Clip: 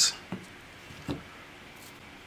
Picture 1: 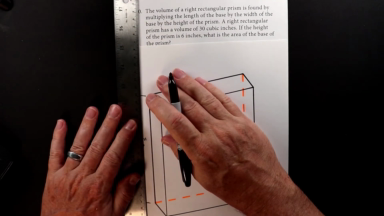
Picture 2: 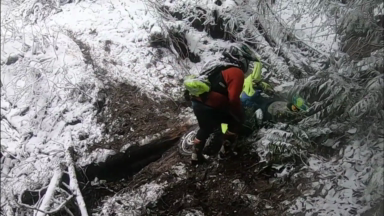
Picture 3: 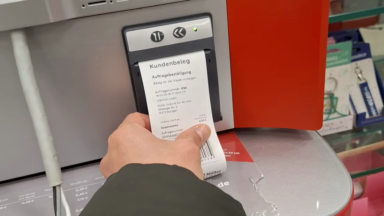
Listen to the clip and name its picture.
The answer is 1